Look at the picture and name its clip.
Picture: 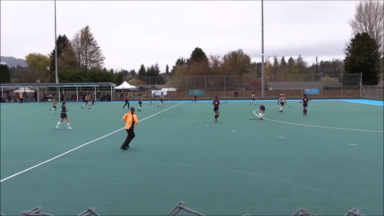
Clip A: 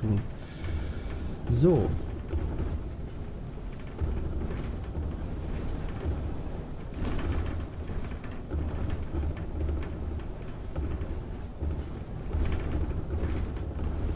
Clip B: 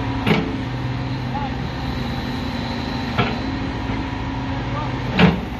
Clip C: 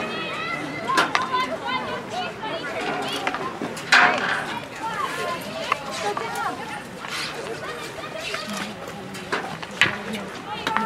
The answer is C